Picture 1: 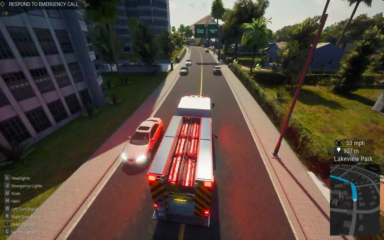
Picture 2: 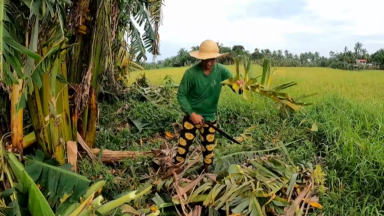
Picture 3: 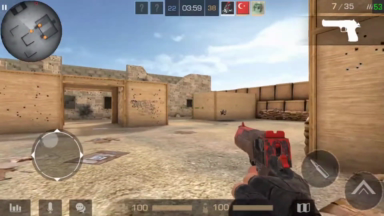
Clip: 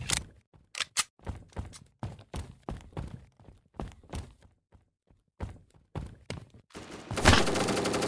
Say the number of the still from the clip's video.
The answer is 3